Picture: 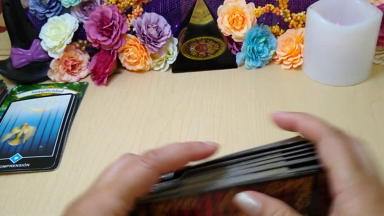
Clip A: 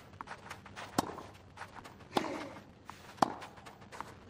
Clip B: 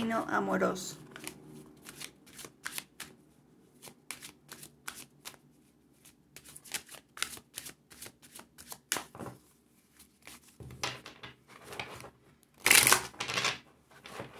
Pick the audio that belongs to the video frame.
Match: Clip B